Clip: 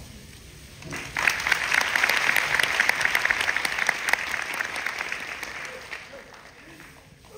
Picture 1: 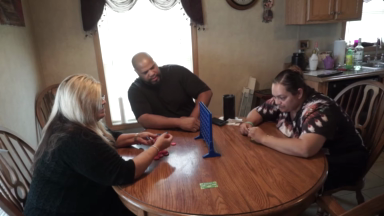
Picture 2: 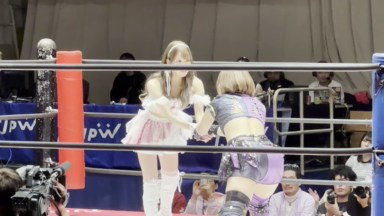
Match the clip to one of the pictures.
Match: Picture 2